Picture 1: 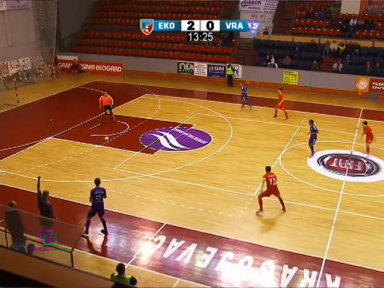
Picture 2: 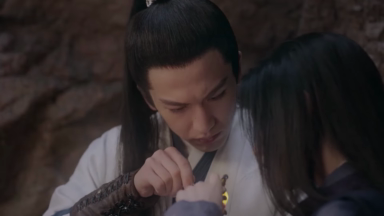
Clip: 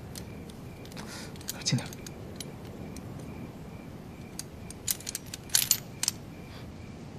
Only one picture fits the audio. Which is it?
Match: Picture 2